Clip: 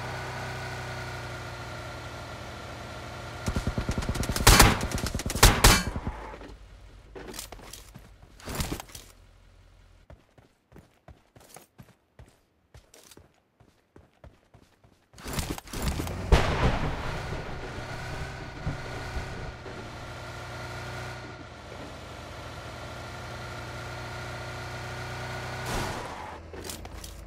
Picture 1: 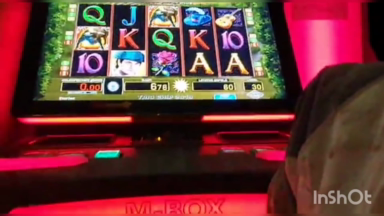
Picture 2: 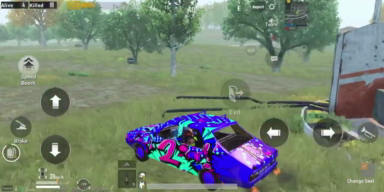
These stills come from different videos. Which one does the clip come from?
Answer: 2